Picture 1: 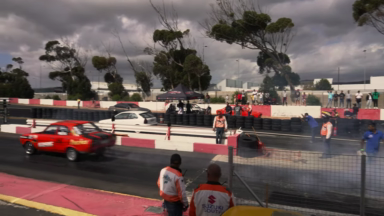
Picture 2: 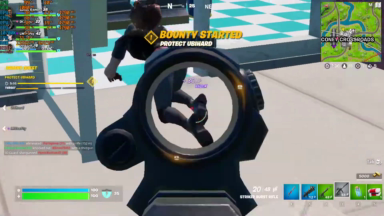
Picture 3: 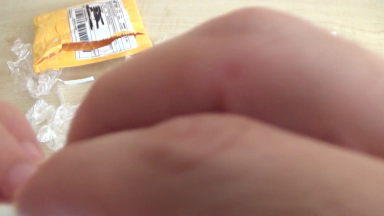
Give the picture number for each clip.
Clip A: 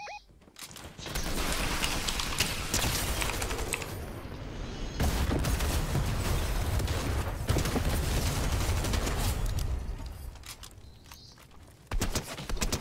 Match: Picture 2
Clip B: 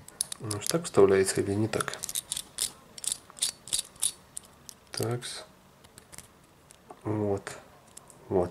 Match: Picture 3